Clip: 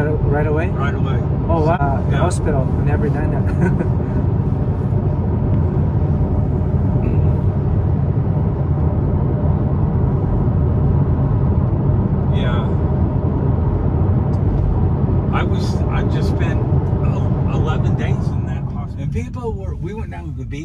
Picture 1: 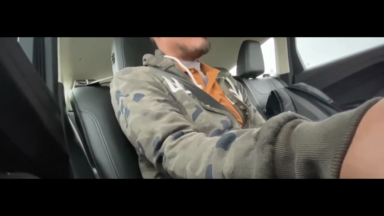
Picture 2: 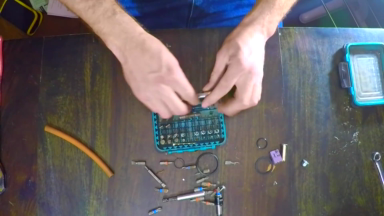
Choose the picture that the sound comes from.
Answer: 1